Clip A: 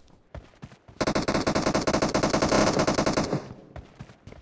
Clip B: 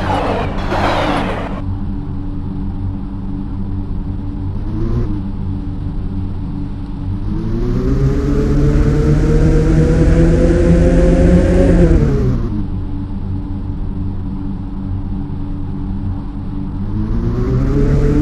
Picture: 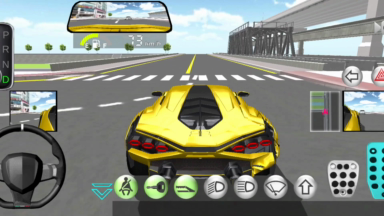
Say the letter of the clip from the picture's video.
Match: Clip B